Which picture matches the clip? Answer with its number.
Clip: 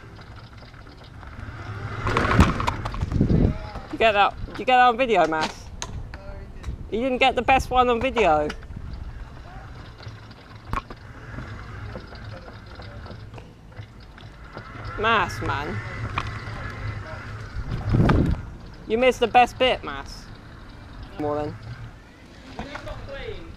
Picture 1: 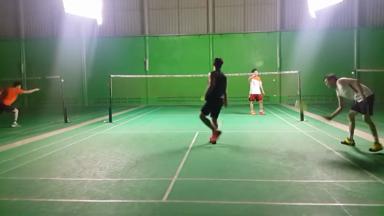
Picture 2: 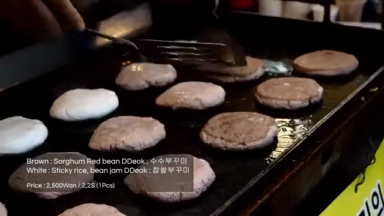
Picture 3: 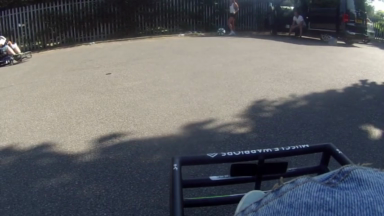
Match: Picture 3